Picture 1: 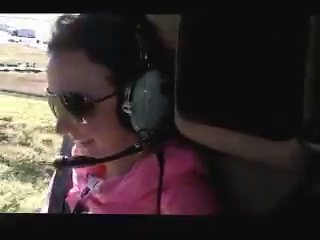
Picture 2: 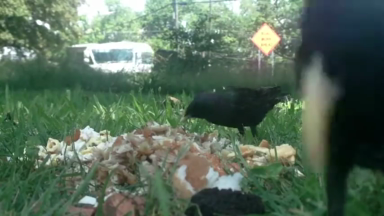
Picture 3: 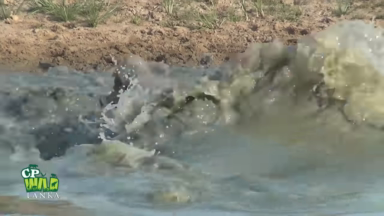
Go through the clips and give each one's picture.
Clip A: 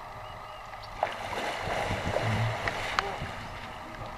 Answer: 3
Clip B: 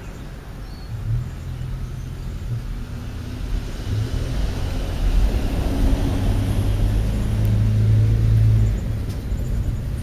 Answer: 2